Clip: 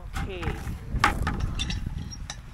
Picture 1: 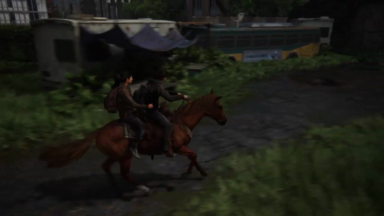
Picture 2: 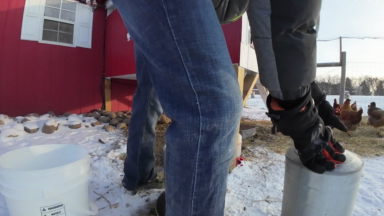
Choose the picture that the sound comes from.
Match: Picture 2